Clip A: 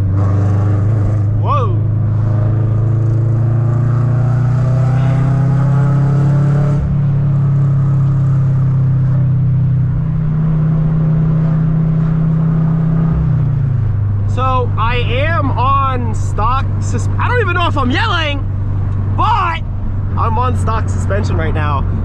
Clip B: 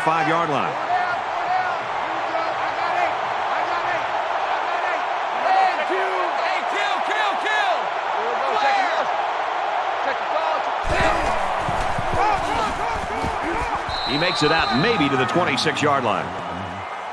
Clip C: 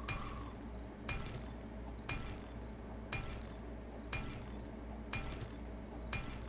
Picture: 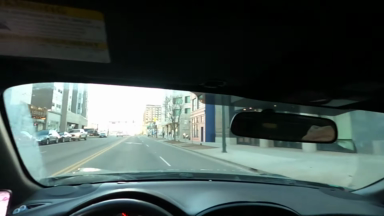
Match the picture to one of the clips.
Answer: A